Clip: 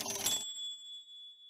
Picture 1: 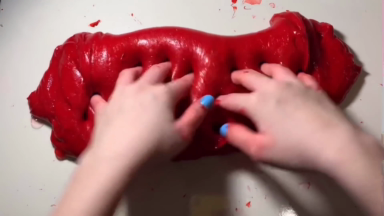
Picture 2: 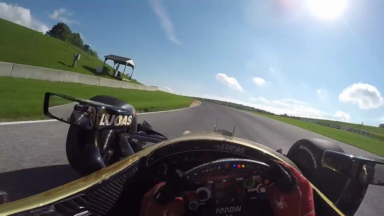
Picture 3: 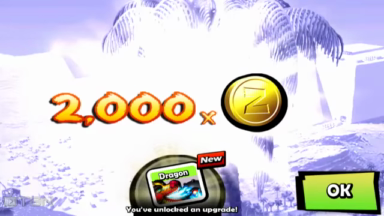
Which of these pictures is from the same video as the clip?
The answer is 3